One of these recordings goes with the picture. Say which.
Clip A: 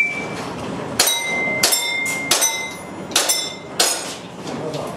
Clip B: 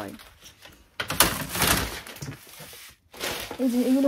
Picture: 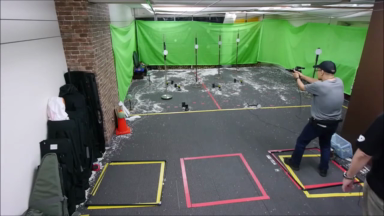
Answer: A